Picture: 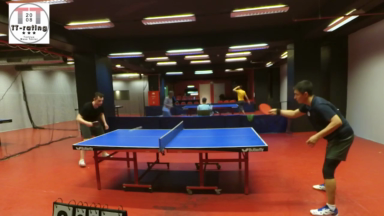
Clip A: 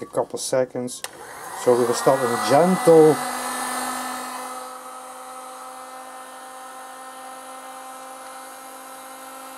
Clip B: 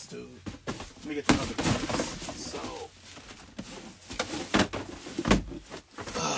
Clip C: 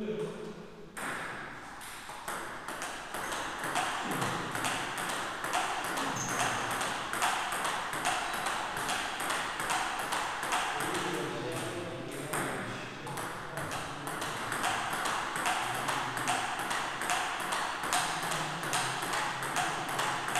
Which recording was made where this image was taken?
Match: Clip C